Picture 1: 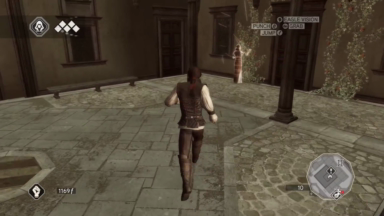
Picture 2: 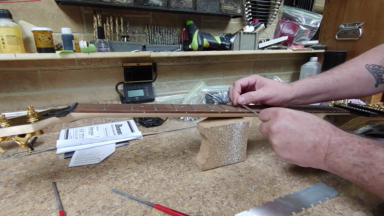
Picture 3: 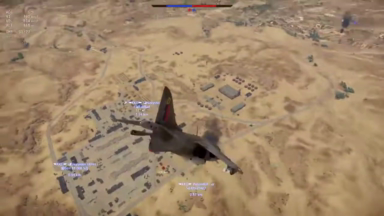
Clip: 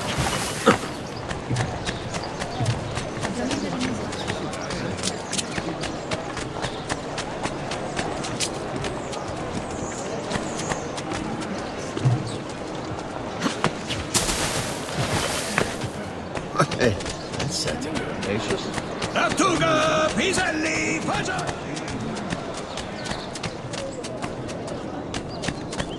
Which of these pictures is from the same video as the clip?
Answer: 1